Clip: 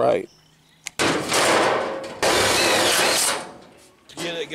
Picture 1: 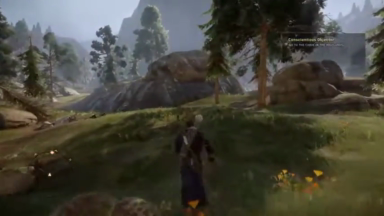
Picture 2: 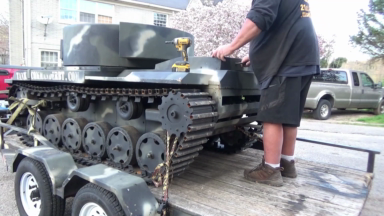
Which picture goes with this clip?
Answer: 2